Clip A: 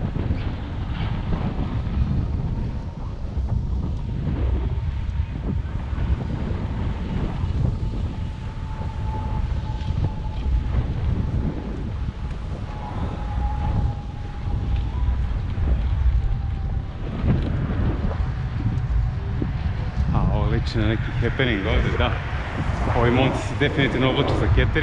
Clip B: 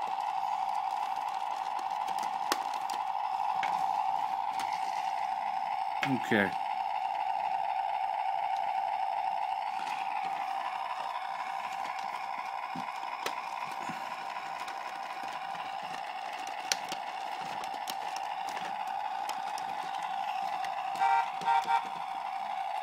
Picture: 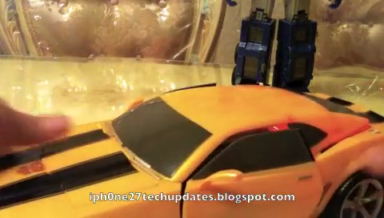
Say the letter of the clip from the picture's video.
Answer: B